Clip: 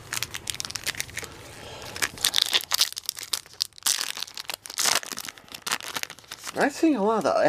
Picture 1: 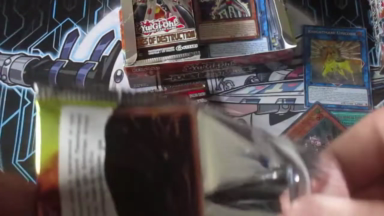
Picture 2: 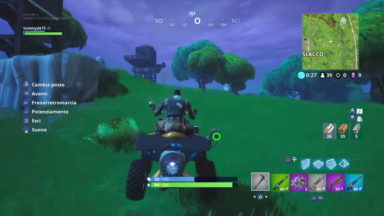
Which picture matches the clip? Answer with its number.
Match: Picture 1